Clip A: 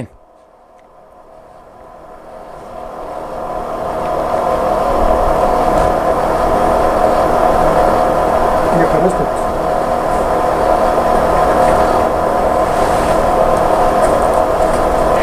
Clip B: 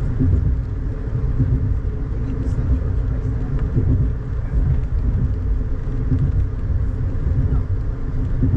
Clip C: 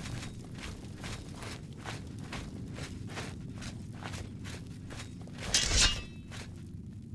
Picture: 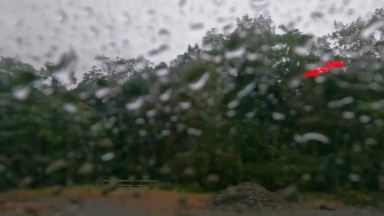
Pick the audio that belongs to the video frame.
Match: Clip B